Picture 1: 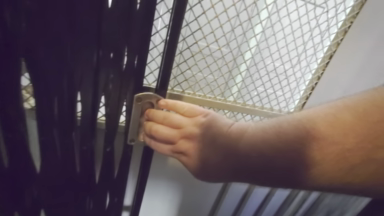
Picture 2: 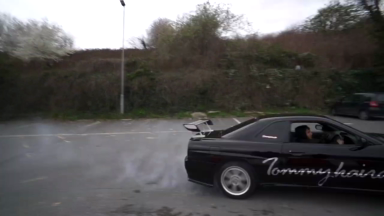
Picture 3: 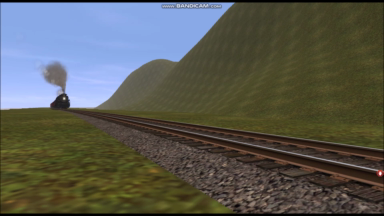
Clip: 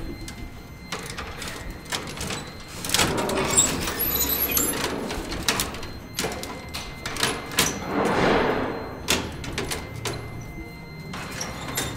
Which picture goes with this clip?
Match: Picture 1